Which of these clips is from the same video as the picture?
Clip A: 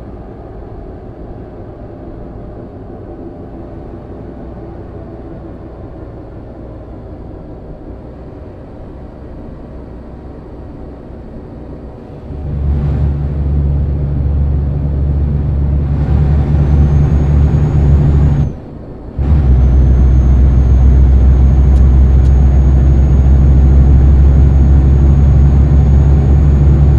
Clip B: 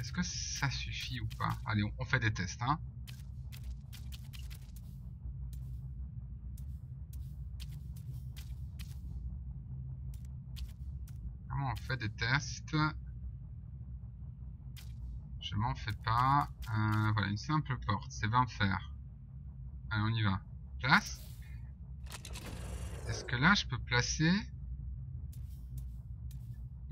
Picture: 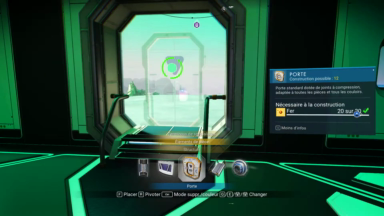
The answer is B